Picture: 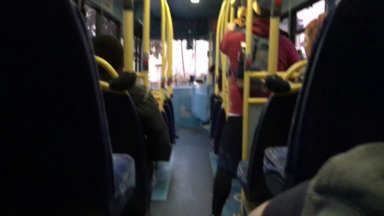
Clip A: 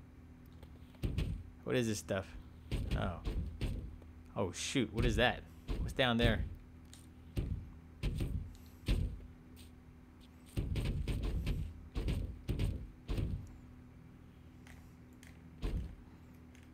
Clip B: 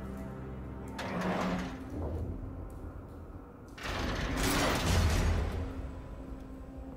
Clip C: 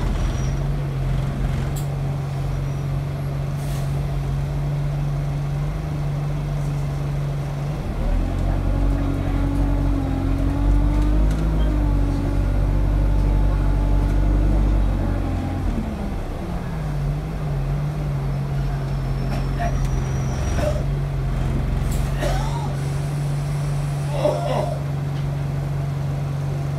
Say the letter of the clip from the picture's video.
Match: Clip C